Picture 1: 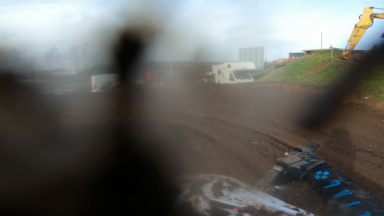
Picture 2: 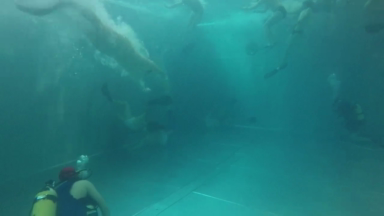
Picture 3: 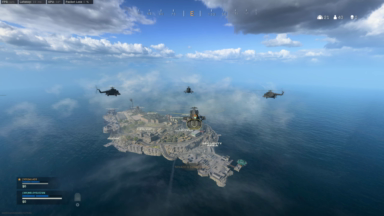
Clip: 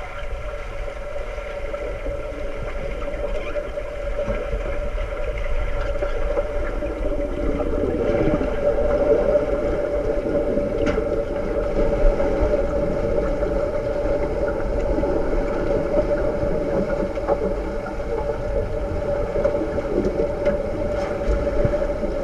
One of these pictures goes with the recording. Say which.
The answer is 2